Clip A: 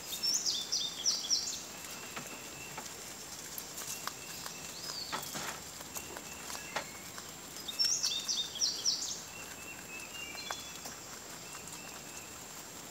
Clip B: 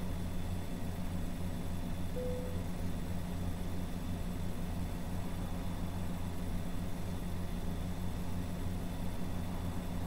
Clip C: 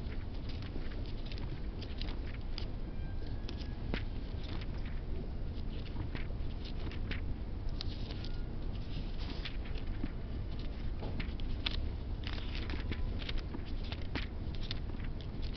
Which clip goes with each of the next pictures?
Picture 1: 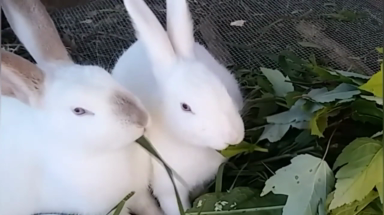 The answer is A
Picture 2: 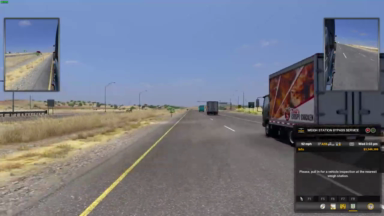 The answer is B